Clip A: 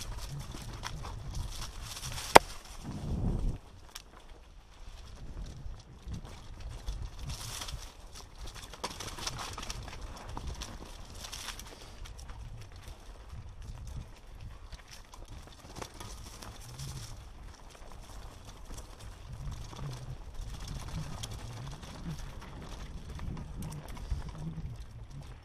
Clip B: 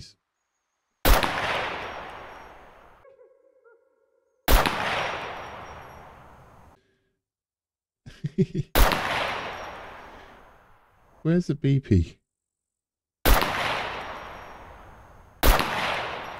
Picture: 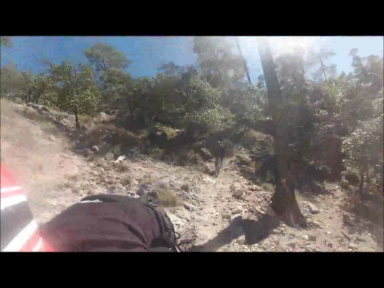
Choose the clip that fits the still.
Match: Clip A